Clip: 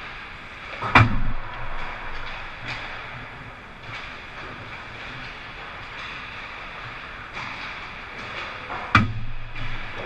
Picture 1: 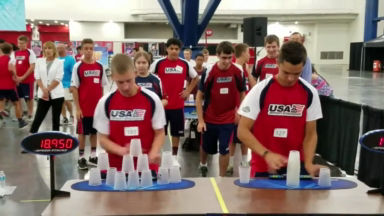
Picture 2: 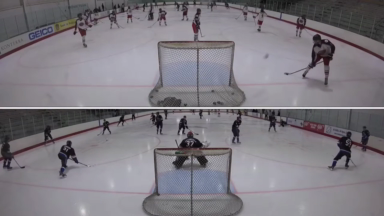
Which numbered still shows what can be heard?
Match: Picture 2